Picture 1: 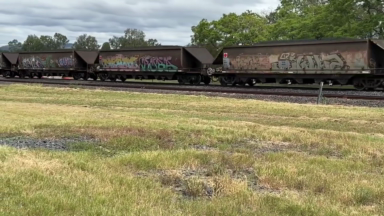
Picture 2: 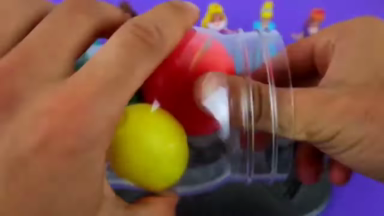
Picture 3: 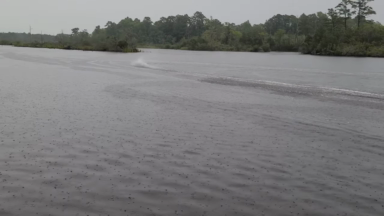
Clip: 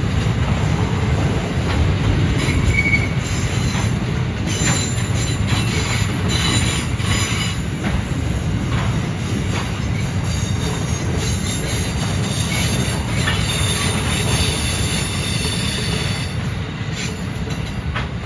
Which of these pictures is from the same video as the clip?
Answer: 1